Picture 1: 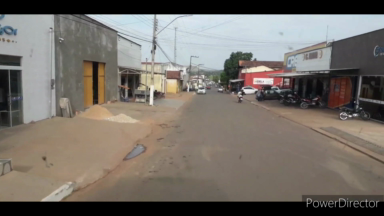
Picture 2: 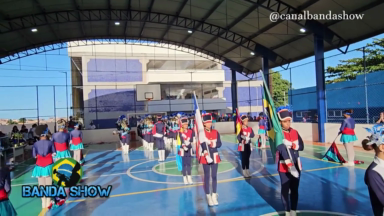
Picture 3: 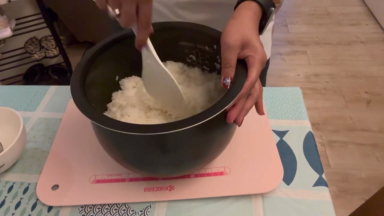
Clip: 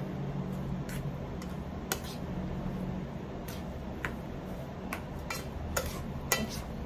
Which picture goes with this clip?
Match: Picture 3